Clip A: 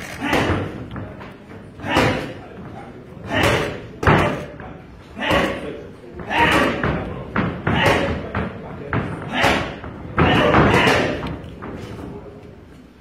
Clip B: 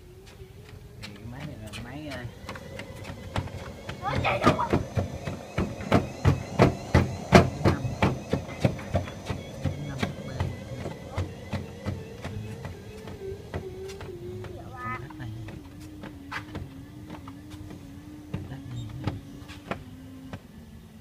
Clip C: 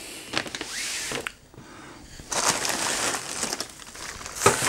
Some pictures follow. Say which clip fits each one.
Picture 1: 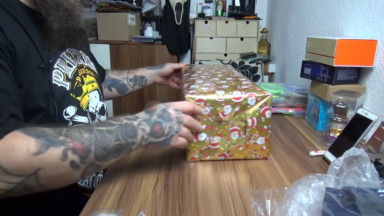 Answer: C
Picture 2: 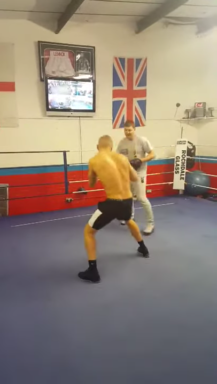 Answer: A